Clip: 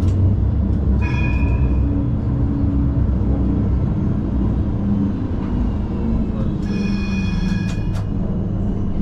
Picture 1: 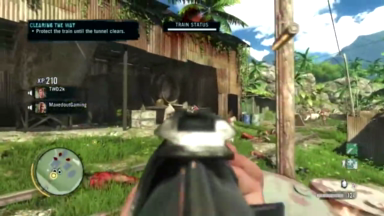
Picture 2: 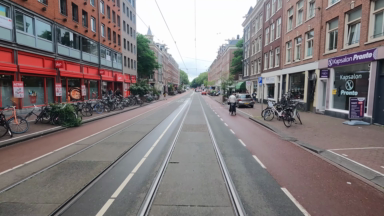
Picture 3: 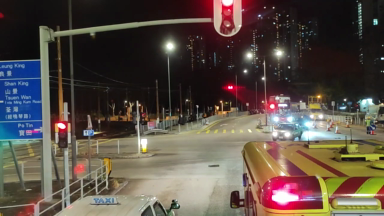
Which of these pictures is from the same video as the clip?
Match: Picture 2